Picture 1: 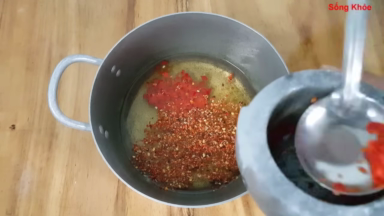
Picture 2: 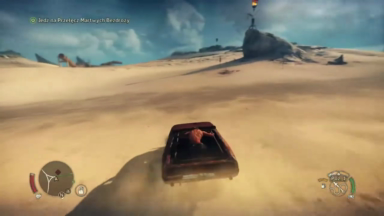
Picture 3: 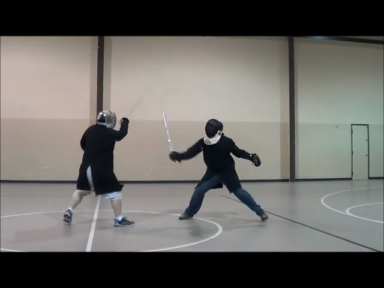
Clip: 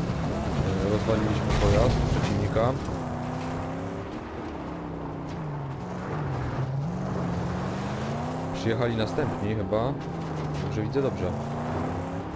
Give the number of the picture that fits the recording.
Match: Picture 2